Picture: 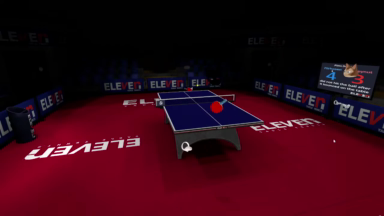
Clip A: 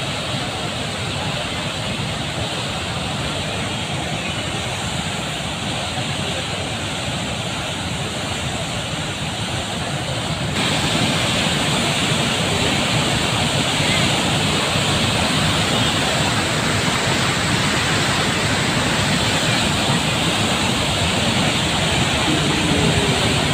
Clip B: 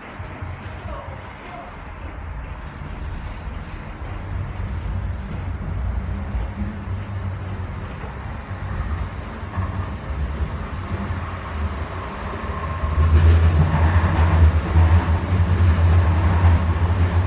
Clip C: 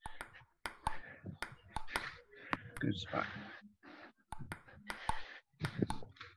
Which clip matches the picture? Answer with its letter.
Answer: C